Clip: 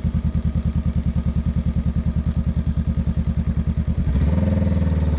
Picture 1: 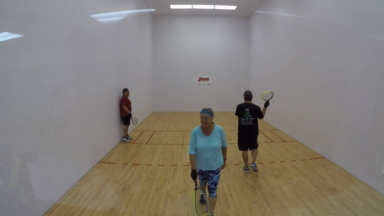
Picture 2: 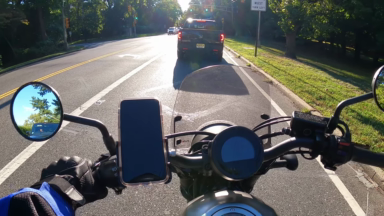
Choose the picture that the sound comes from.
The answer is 2